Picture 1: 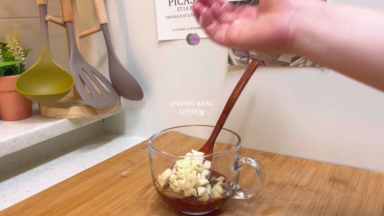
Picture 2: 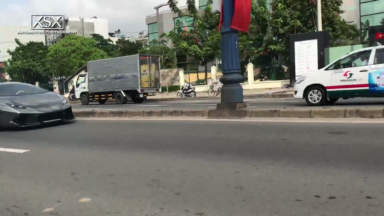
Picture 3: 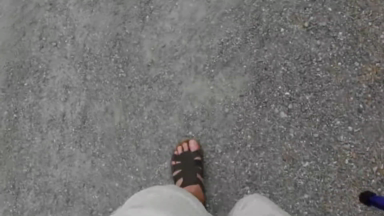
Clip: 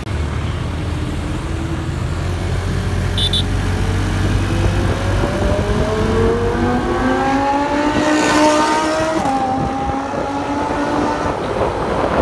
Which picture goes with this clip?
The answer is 2